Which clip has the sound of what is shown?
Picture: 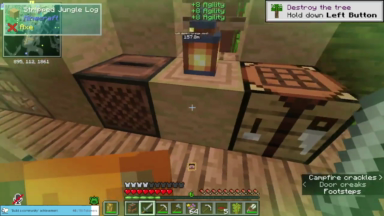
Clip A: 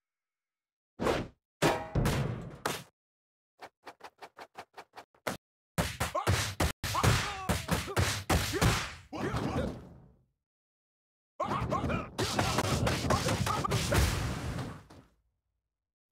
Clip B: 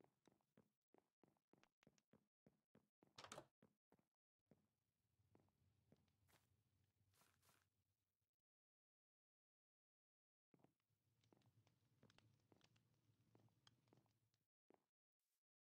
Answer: B